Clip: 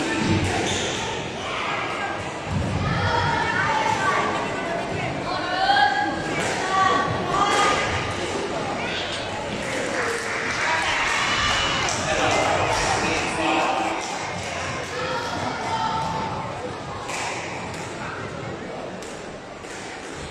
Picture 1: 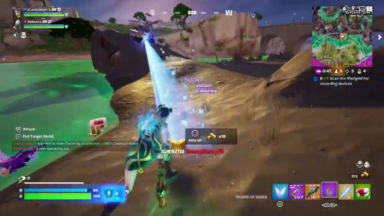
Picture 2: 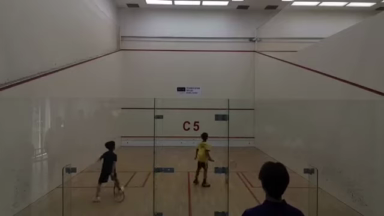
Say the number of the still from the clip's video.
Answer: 2